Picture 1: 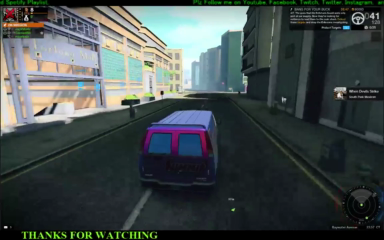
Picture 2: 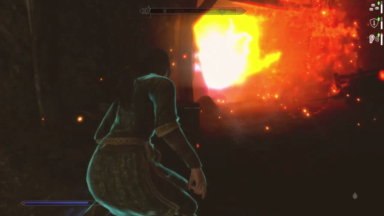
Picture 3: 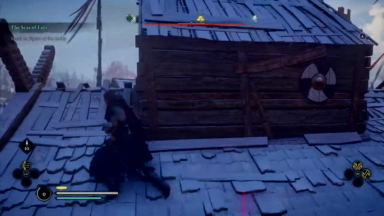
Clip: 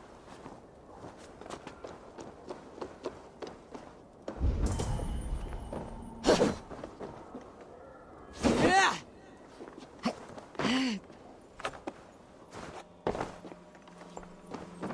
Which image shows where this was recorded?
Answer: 3